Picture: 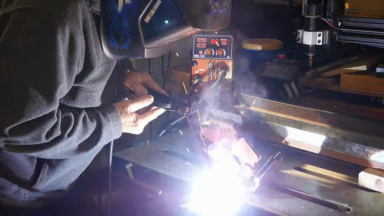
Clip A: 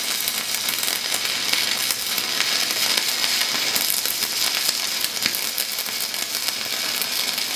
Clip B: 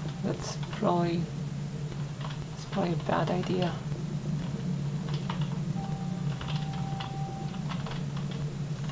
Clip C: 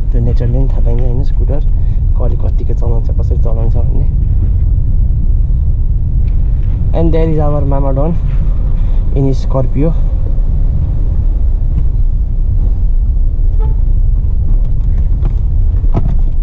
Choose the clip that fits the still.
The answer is A